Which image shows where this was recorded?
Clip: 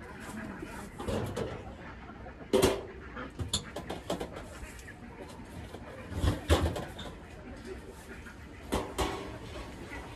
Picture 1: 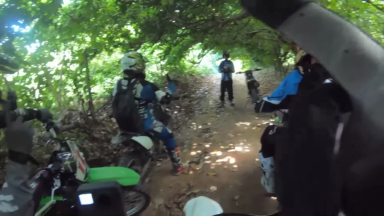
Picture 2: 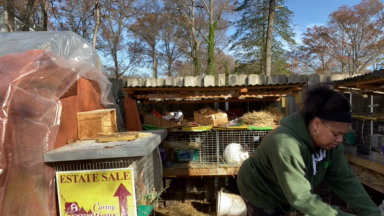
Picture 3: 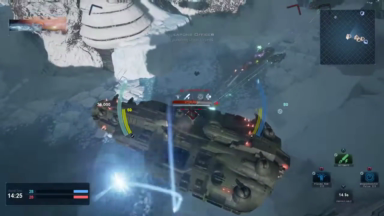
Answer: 2